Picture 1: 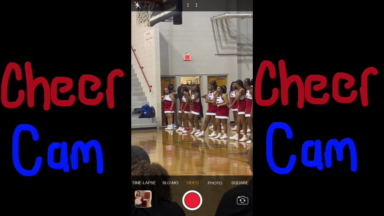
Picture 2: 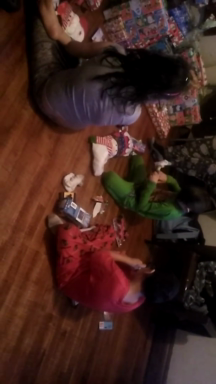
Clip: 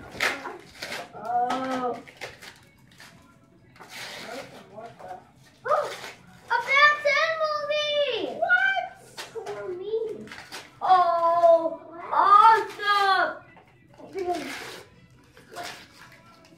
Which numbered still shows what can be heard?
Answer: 2